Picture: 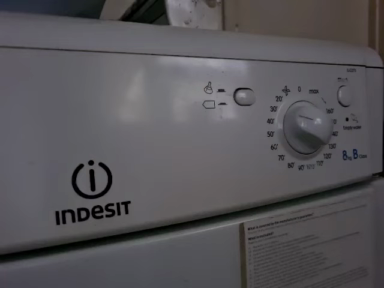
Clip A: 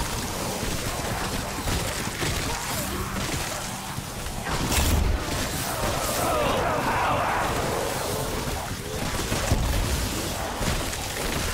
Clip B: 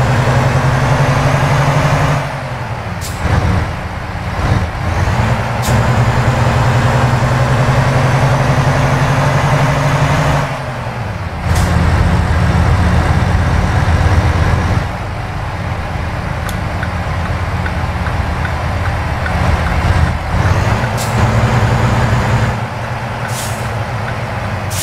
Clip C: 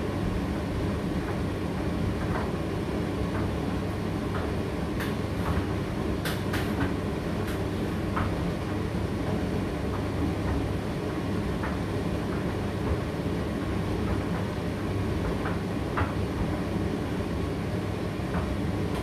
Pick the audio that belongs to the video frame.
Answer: C